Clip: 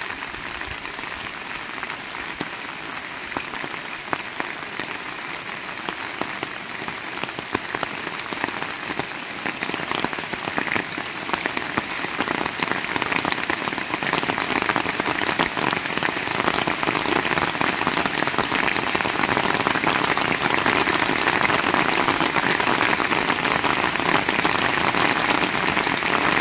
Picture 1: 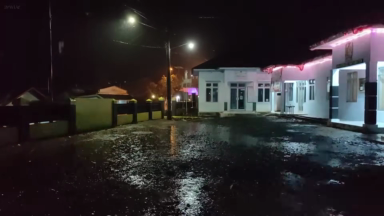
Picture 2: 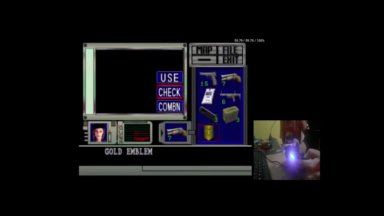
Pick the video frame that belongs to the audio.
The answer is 1